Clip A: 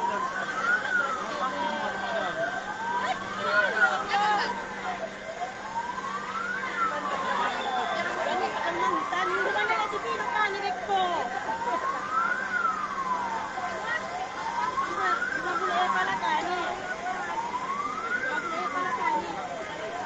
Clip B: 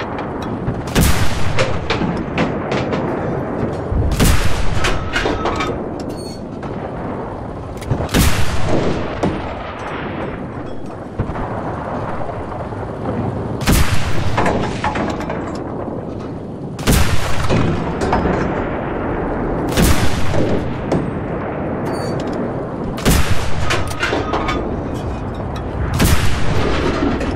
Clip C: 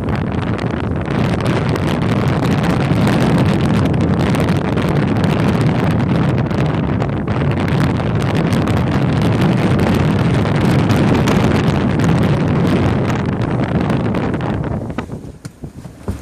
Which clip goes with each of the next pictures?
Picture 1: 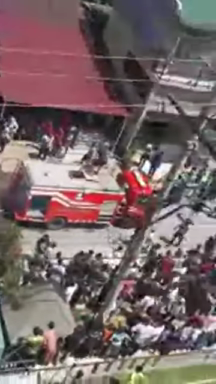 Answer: A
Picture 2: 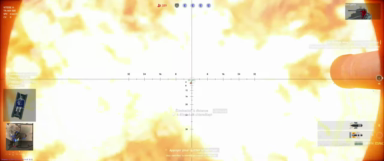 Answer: B